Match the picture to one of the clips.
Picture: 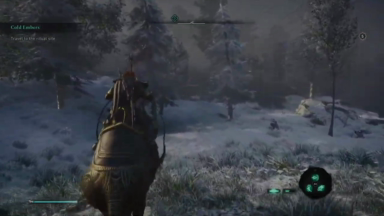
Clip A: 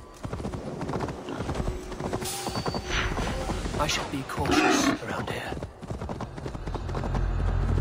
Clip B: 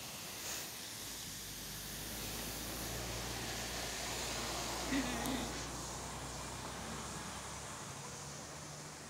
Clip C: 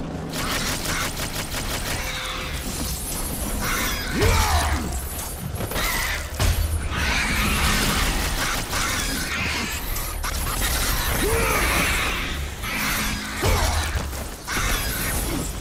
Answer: A